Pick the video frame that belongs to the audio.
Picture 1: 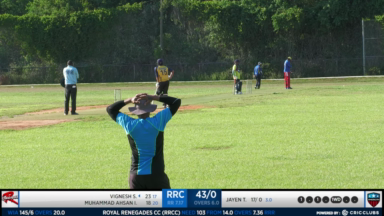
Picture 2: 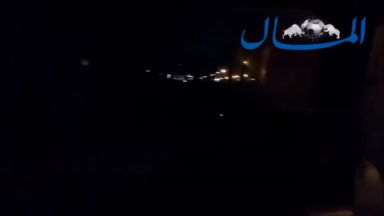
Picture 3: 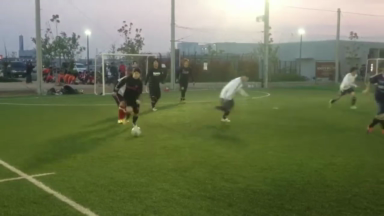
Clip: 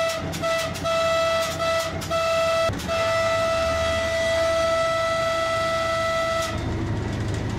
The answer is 2